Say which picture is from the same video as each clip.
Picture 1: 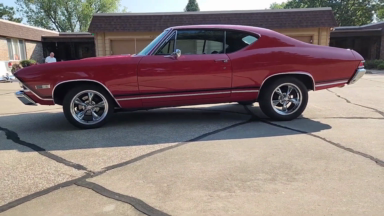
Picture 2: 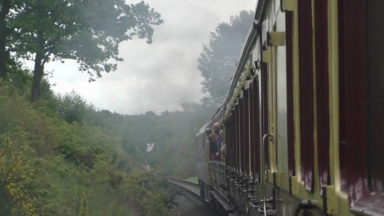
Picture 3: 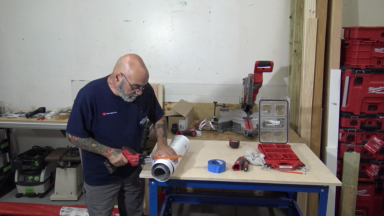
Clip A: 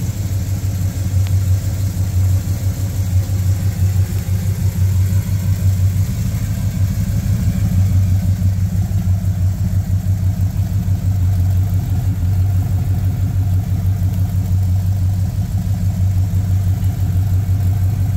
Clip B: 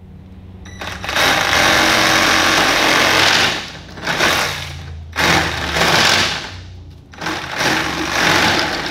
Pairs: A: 1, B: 3